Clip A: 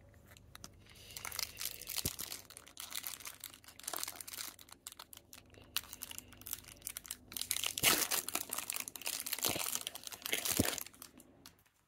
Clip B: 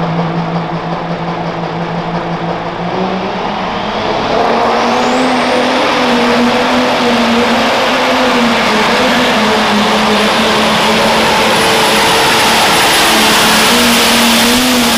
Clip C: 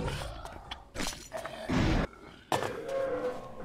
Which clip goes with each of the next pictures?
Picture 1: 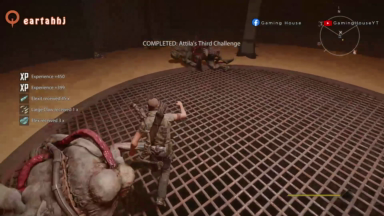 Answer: C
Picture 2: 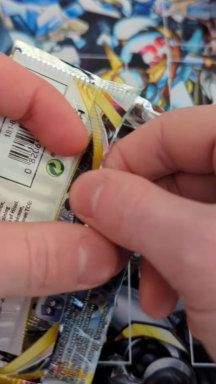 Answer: A